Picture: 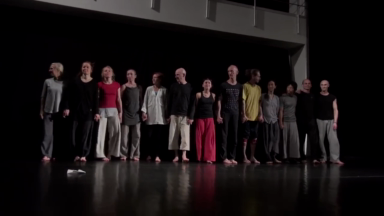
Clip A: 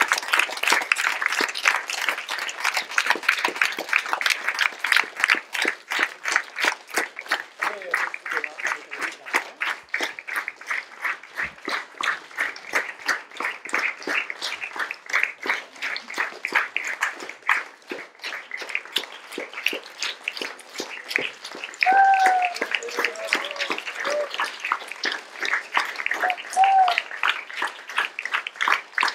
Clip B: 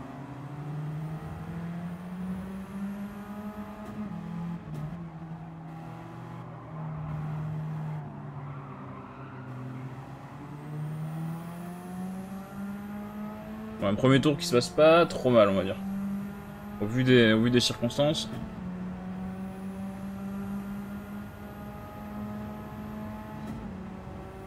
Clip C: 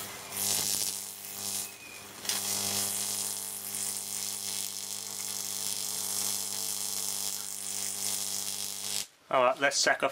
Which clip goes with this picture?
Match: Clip A